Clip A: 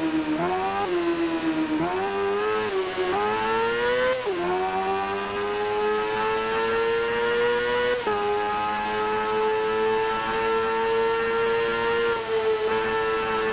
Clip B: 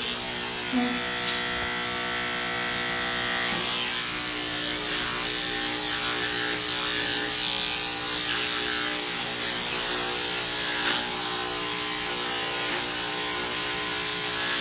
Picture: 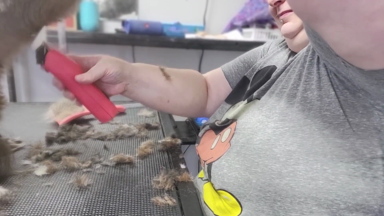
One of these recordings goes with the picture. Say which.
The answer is B